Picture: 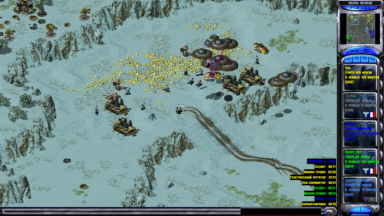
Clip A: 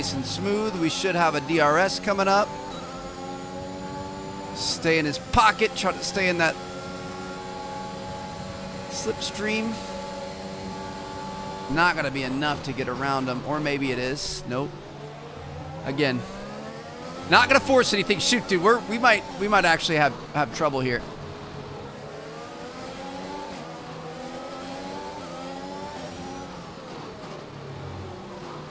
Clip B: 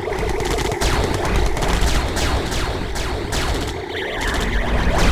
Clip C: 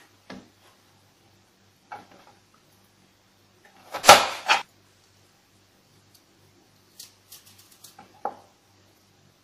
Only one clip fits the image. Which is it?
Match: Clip B